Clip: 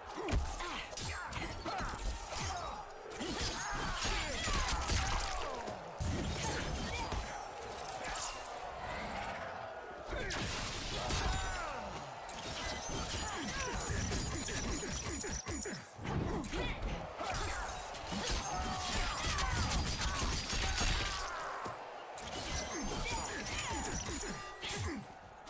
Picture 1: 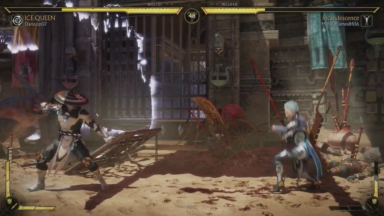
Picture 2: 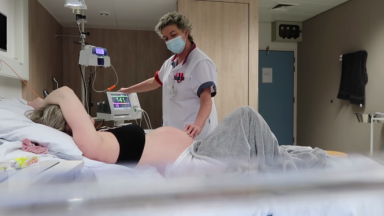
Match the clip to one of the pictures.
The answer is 1